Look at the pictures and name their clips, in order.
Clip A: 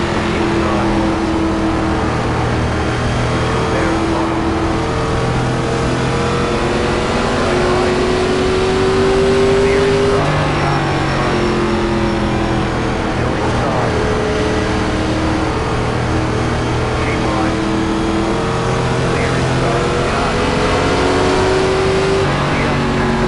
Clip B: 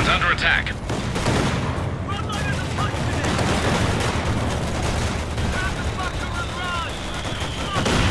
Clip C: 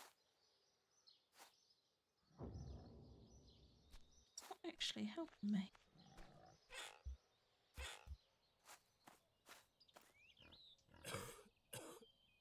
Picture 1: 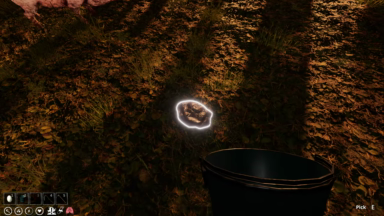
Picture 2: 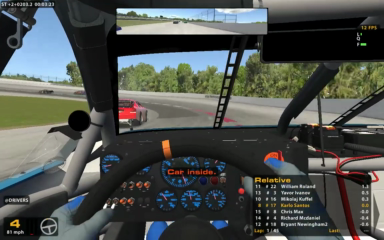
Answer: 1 C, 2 A